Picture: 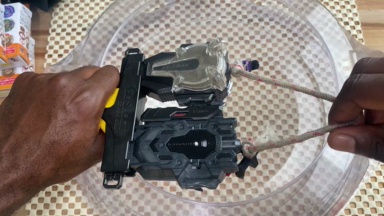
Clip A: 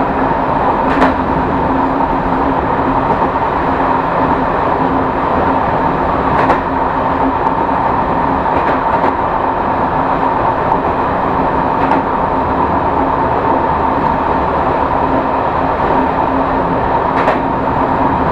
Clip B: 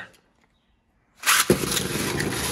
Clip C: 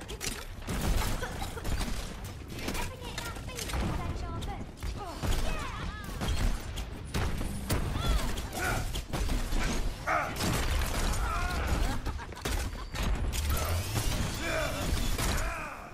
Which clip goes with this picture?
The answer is B